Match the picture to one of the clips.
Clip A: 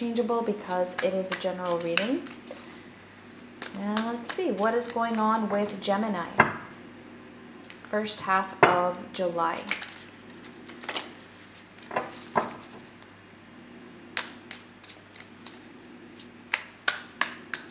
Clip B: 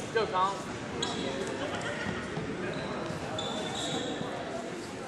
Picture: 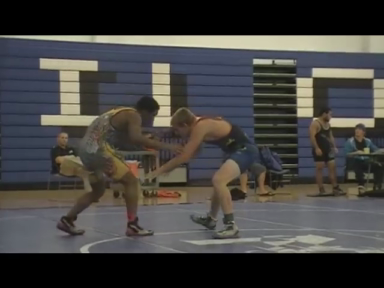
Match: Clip B